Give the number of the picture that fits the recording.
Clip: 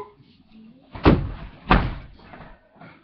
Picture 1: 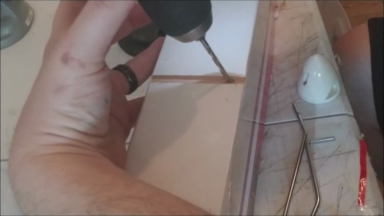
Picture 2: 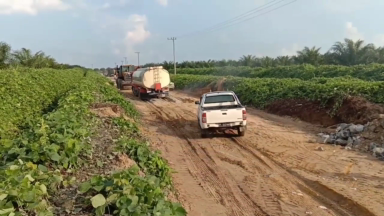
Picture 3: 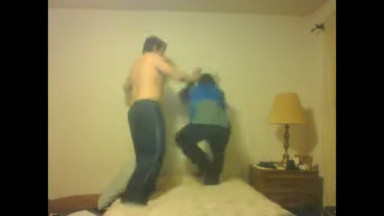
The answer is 3